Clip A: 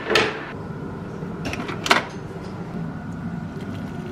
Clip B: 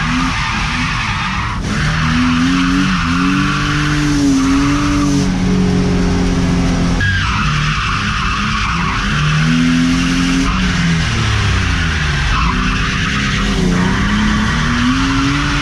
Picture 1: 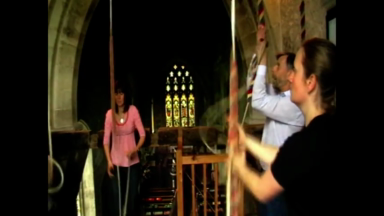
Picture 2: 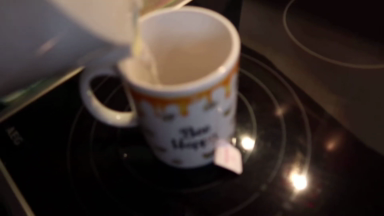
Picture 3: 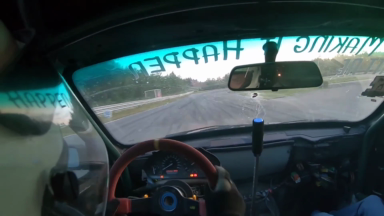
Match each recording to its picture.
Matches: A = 2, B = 3